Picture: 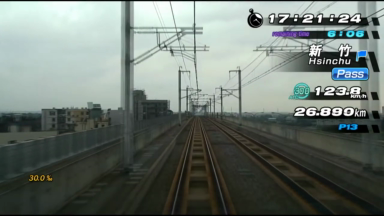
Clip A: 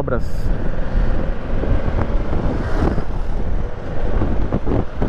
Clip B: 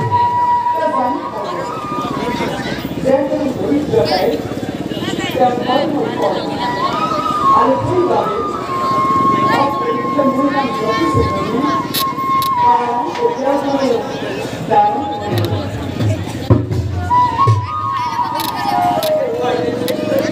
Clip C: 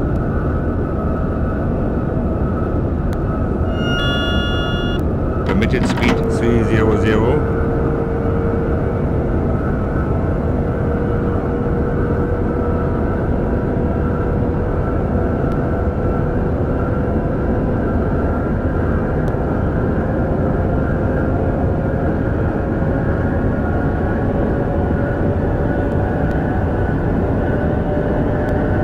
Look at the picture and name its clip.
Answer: C